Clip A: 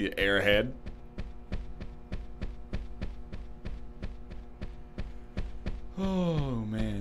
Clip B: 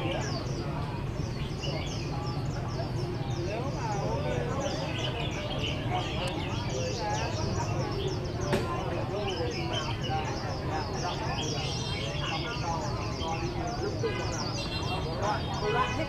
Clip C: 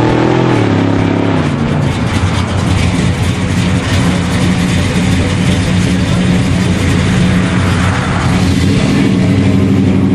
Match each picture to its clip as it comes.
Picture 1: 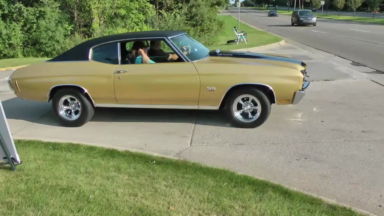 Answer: C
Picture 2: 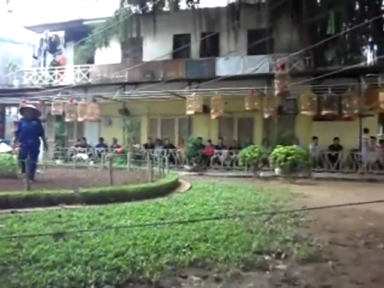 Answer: B